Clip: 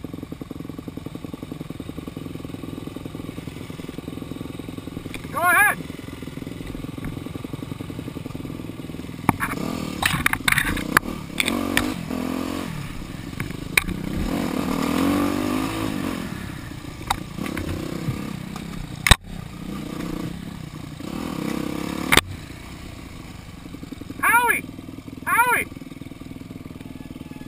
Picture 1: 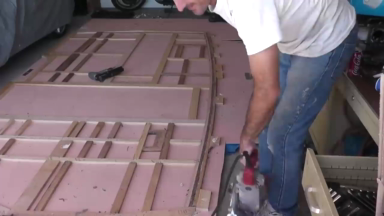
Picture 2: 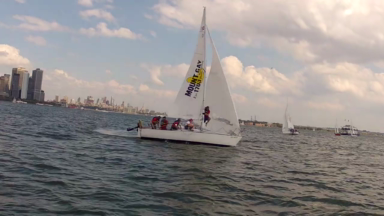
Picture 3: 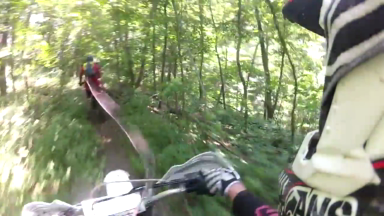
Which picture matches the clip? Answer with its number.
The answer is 3